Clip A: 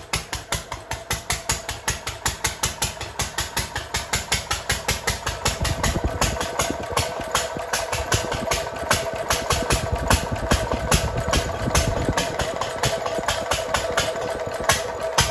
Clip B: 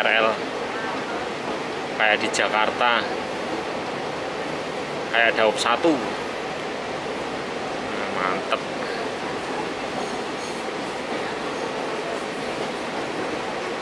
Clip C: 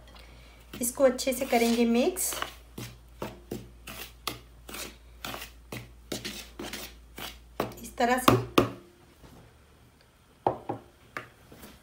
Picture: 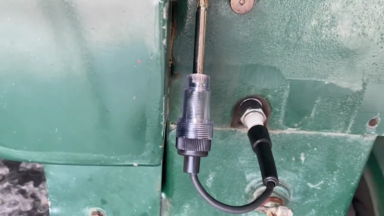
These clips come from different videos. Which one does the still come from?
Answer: A